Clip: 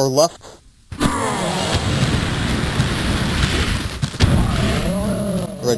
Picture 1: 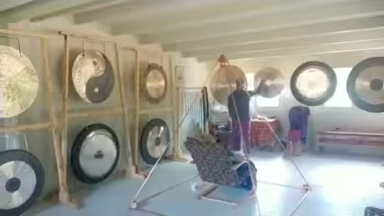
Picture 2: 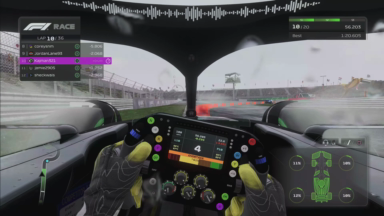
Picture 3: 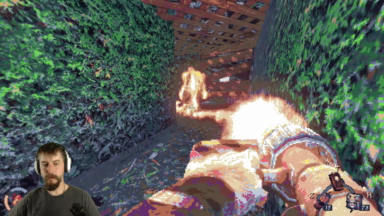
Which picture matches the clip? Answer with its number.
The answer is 3